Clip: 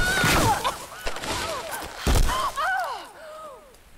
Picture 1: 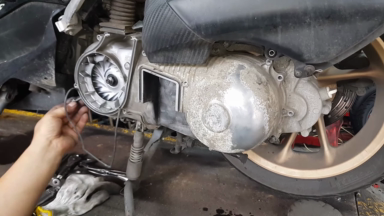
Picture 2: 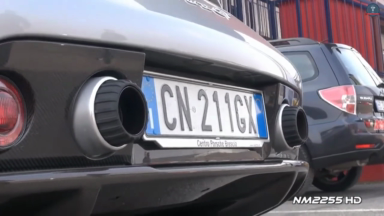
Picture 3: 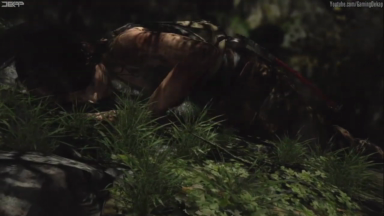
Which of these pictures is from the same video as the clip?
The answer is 3